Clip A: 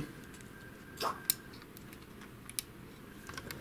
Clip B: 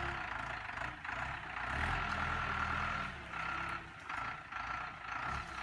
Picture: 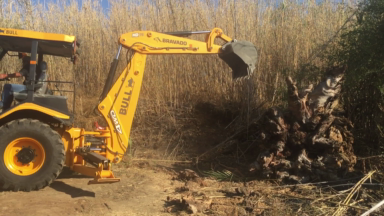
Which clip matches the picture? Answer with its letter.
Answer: B